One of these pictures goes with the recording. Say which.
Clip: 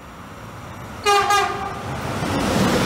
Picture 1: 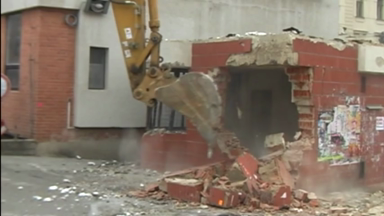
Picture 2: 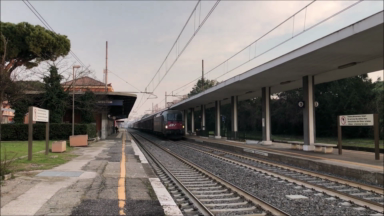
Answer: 2